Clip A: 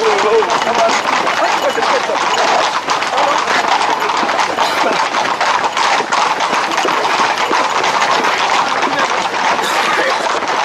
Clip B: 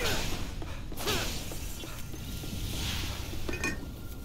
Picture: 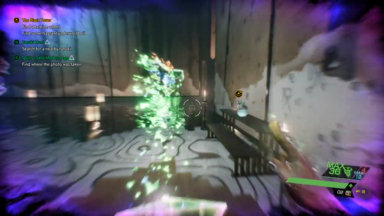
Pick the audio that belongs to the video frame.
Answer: B